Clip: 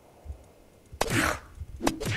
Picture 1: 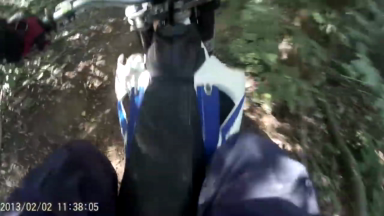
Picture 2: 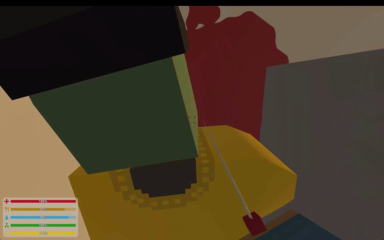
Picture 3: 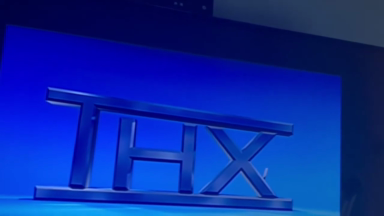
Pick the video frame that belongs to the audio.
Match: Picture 2